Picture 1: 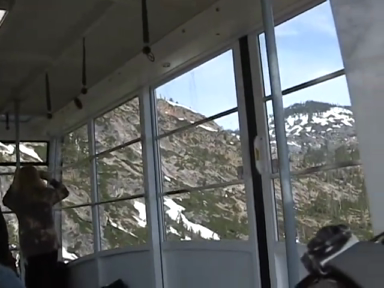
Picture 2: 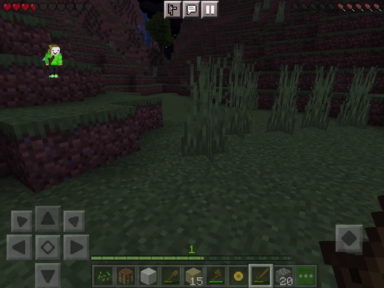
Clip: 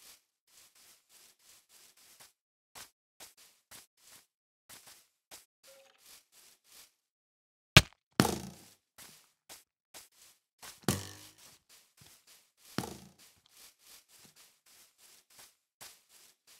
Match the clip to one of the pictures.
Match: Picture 2